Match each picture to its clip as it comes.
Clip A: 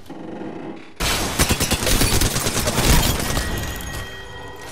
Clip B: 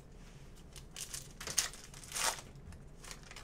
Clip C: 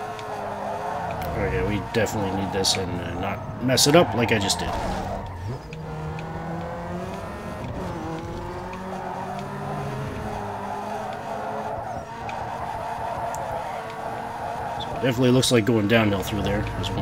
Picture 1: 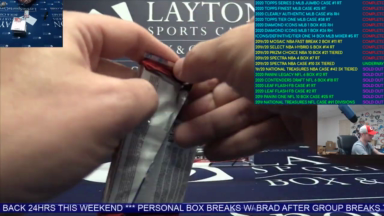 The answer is B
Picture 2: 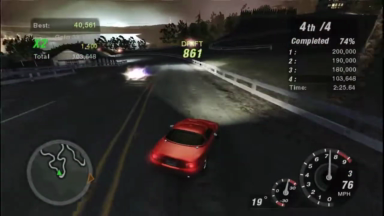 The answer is C